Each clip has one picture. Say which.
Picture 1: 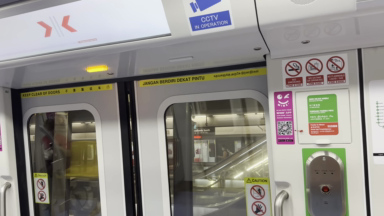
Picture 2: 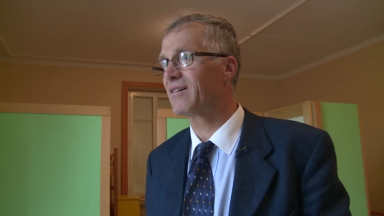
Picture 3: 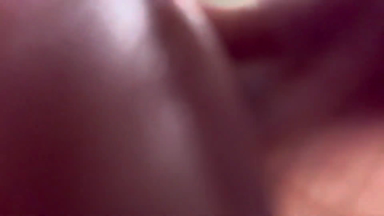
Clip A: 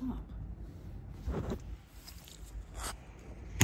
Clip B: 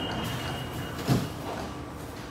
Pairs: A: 3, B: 1